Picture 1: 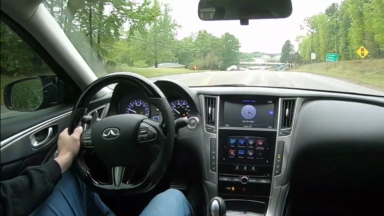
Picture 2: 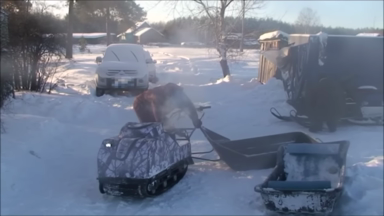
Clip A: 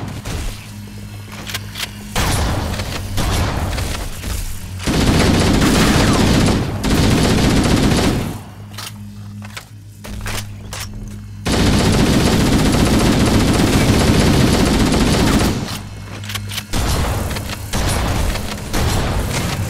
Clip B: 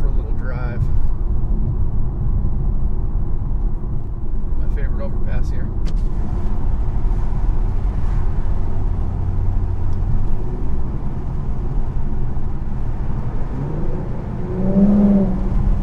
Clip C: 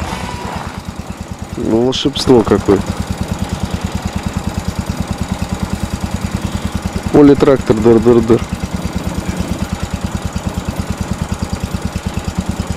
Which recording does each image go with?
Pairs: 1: B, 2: C